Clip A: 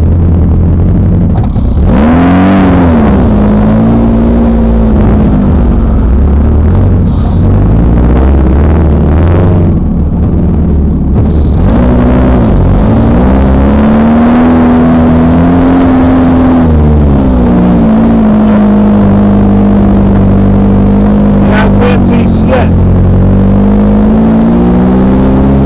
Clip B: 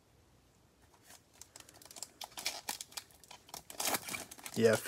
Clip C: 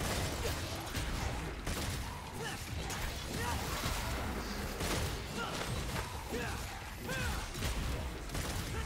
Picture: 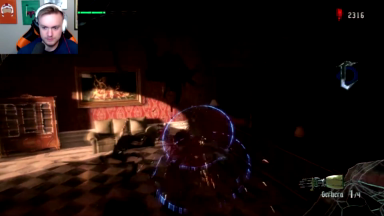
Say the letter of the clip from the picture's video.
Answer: C